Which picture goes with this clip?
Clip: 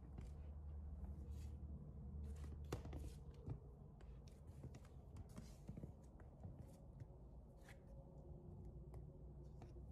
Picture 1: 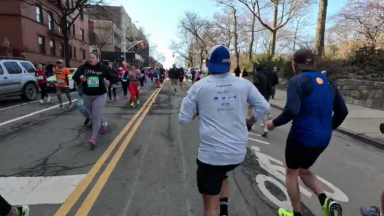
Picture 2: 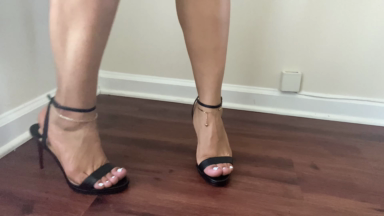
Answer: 2